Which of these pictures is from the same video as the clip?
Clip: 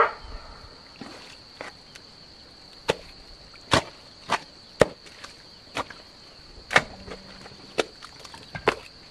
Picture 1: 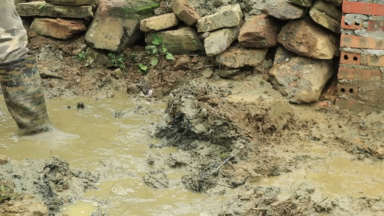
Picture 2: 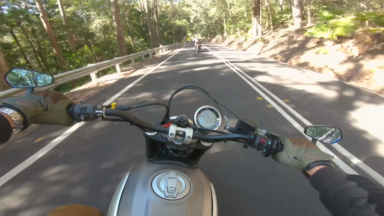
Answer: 1